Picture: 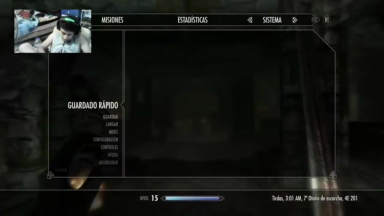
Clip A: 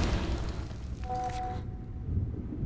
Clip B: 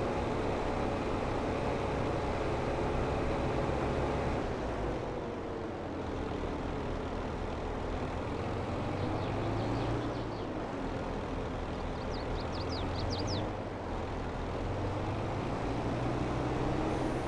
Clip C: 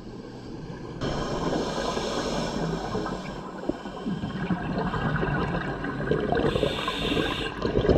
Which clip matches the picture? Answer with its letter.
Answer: A